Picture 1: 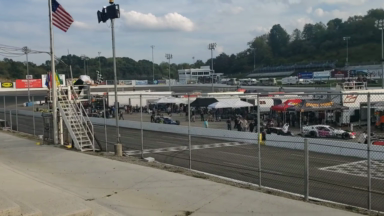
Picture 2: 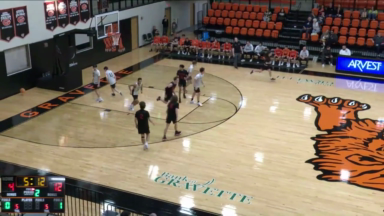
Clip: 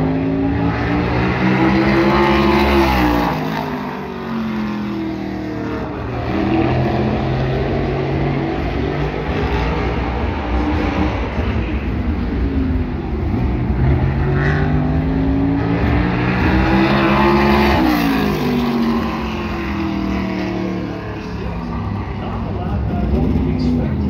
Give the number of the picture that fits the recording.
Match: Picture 1